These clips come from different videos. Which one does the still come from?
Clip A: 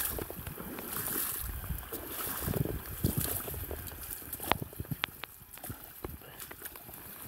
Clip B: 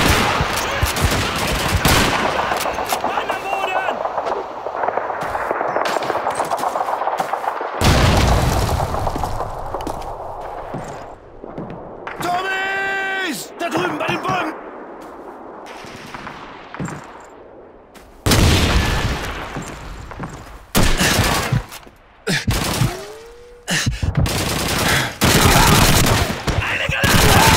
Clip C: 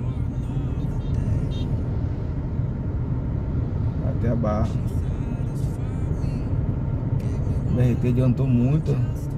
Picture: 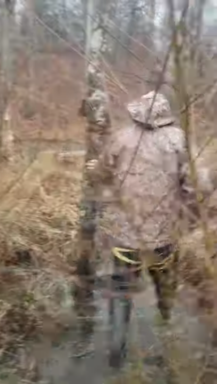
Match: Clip A